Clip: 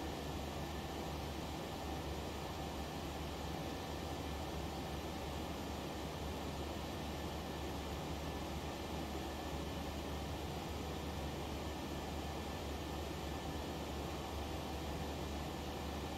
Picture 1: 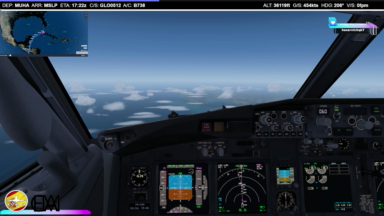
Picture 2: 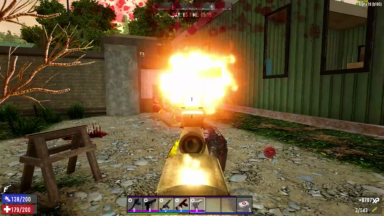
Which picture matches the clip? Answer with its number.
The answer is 1